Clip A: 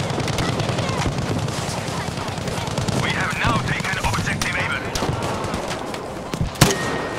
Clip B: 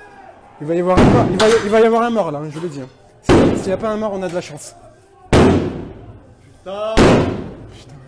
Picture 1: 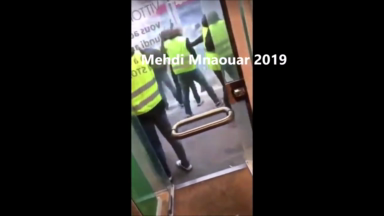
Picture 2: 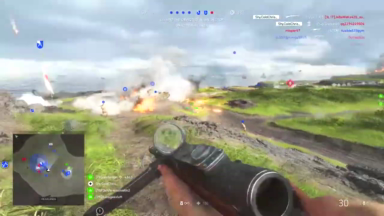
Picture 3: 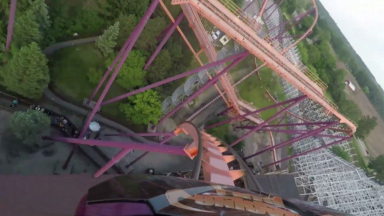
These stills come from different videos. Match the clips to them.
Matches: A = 2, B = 1